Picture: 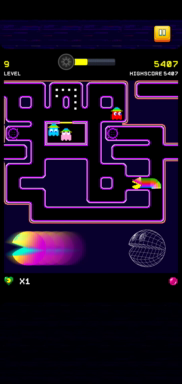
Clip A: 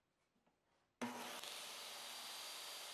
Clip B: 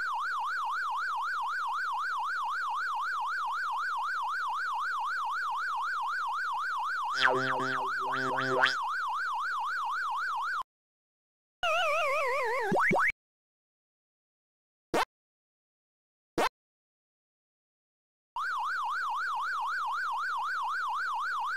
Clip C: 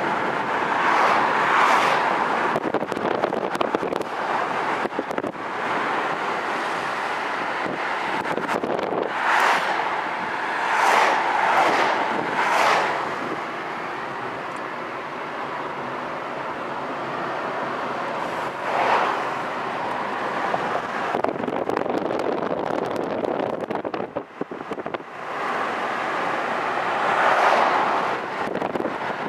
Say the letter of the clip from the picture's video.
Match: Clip B